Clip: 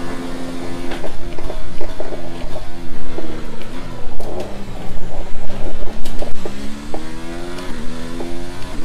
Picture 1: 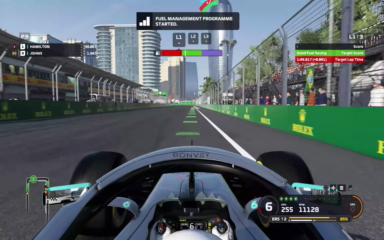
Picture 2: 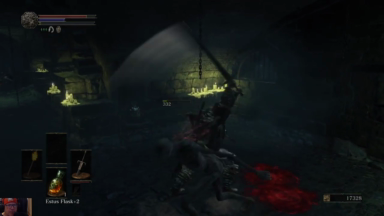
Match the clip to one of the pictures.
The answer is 1